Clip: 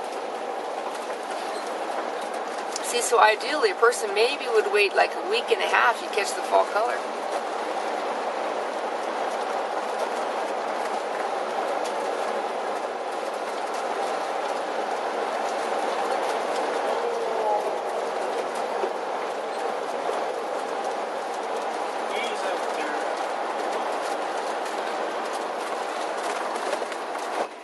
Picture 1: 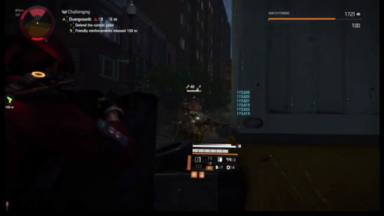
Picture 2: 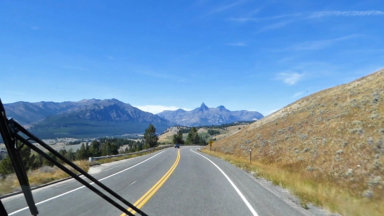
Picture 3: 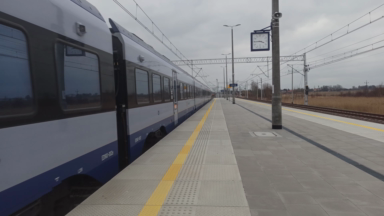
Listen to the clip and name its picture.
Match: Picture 2